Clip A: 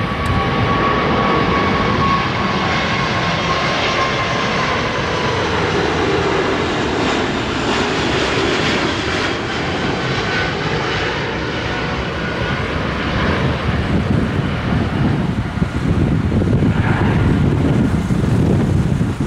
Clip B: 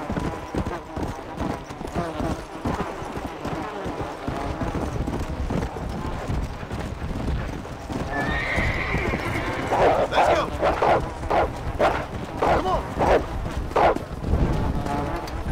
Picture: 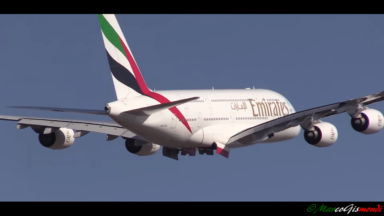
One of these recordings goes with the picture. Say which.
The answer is A